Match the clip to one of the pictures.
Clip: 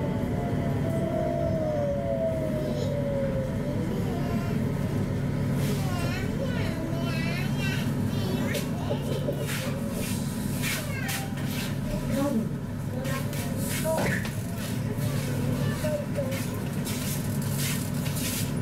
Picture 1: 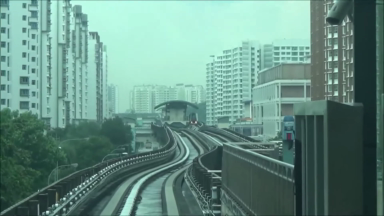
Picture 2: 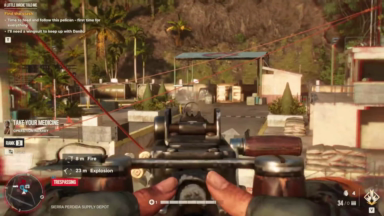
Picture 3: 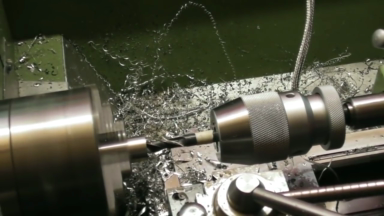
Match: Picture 1